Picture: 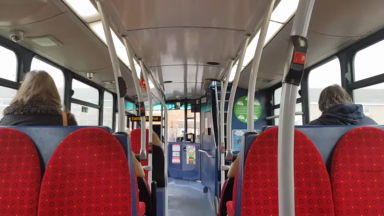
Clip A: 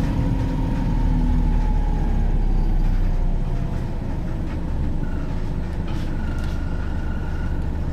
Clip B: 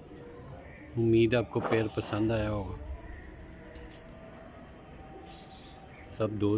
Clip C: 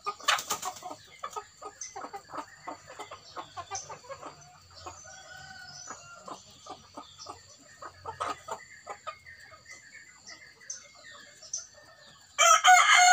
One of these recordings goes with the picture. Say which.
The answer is A